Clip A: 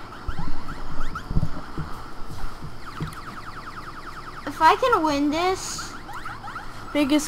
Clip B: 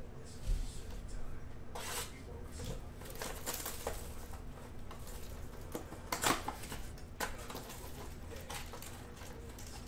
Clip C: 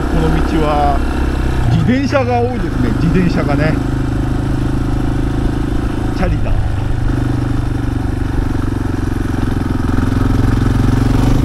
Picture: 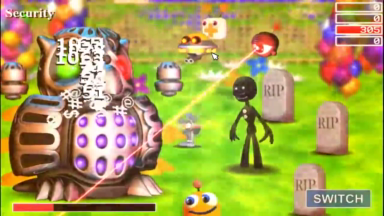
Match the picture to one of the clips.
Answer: A